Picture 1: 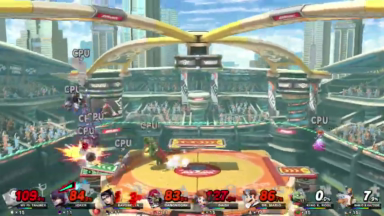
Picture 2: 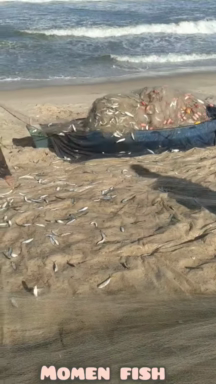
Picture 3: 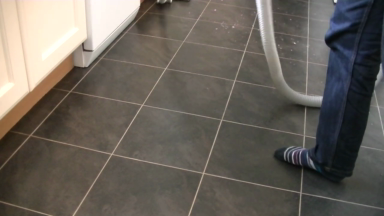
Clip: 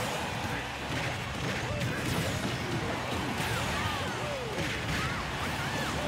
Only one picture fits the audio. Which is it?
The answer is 1